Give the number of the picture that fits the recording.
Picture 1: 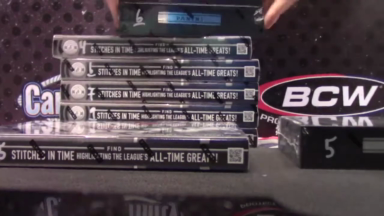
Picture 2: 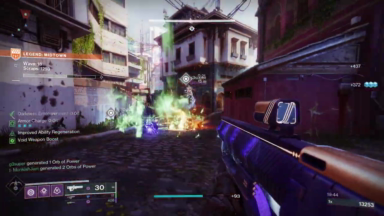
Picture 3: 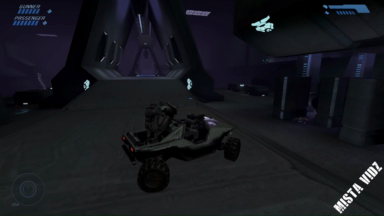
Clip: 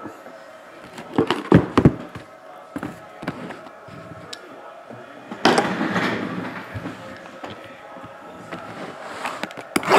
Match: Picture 1